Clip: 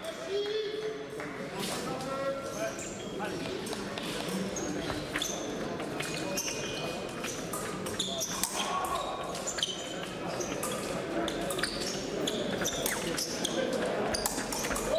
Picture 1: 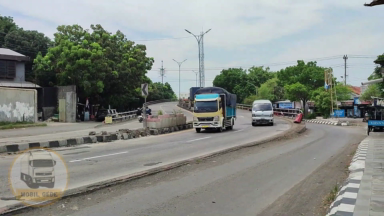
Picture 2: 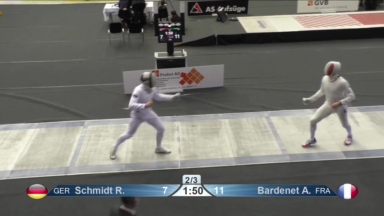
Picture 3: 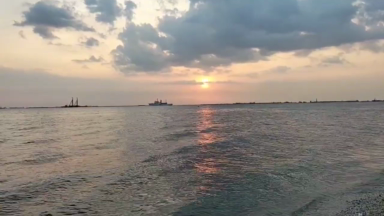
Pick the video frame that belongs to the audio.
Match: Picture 2